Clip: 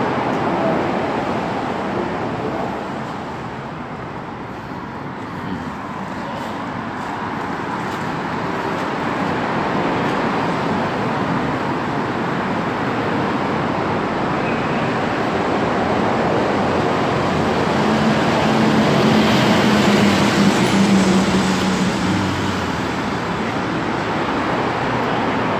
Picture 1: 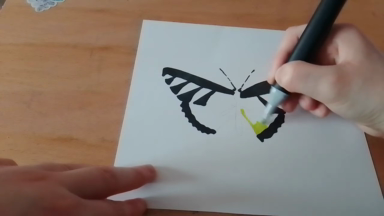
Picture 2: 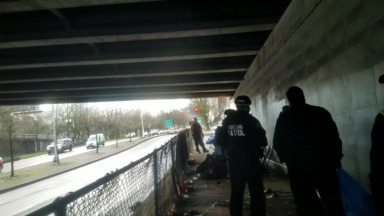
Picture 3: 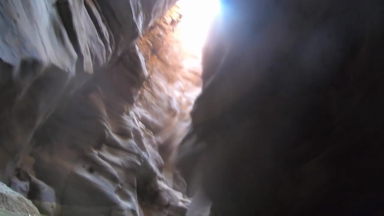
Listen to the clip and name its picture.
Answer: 2